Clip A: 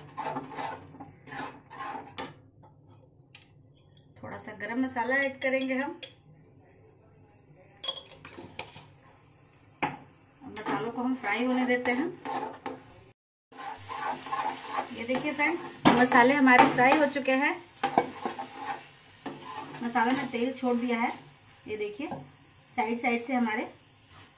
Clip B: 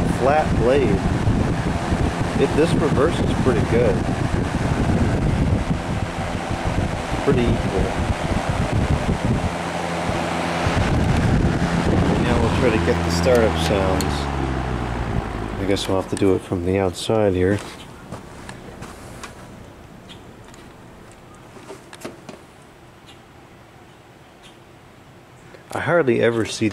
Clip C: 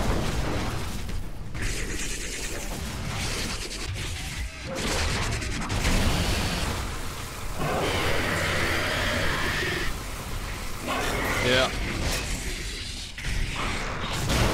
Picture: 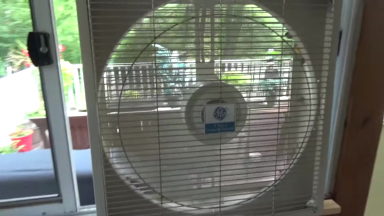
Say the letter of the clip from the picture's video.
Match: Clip B